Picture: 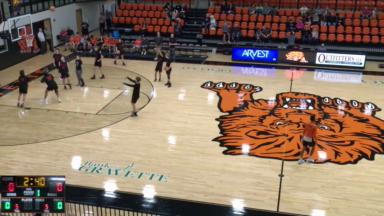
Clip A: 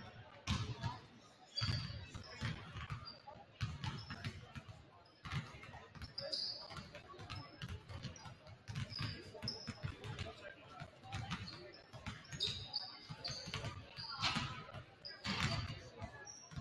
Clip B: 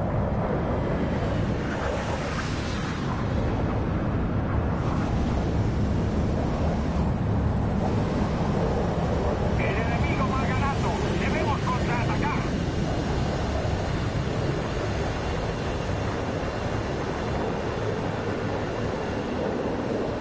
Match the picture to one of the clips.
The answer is A